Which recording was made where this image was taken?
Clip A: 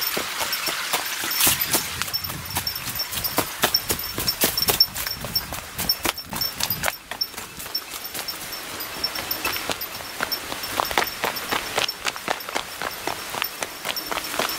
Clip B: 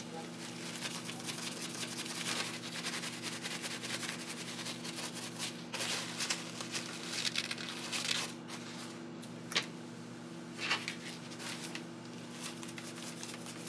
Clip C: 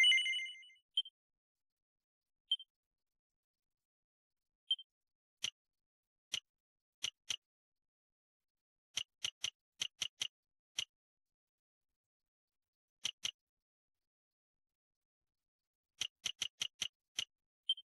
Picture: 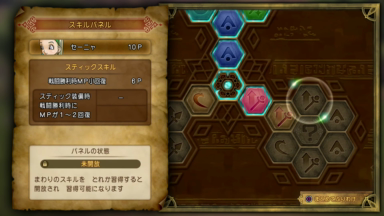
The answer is C